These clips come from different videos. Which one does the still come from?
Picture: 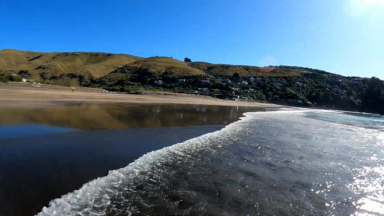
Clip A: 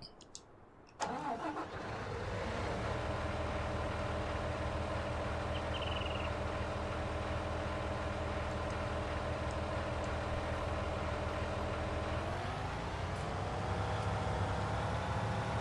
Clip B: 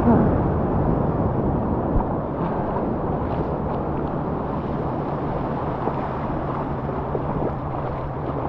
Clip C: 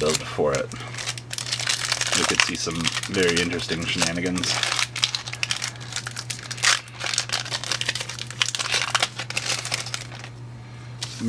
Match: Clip B